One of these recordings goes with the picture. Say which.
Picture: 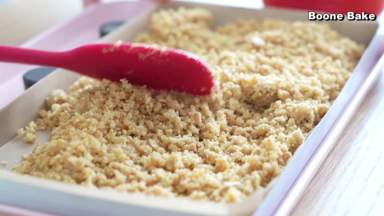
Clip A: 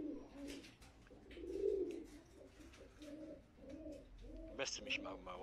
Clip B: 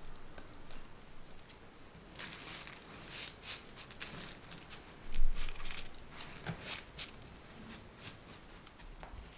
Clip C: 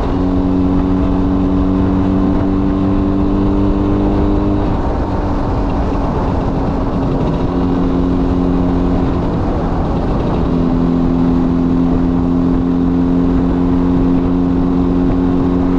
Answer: B